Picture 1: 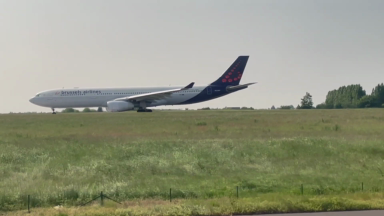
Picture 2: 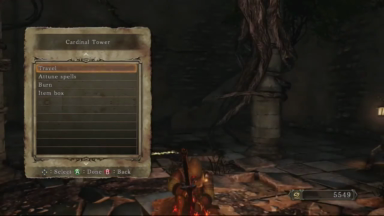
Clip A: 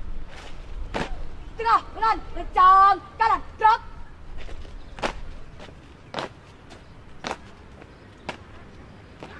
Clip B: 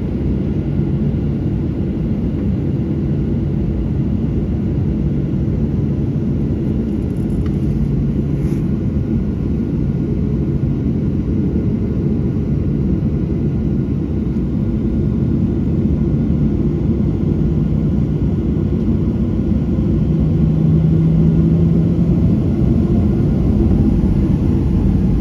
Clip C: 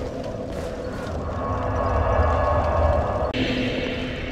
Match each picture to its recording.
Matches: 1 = B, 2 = C